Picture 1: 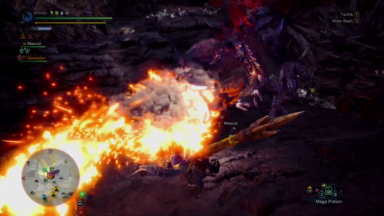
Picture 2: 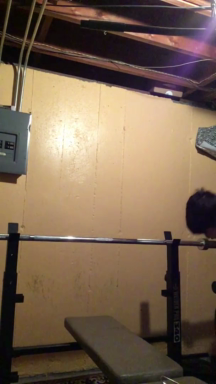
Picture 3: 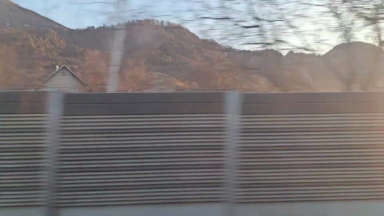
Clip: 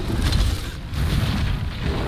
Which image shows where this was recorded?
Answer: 1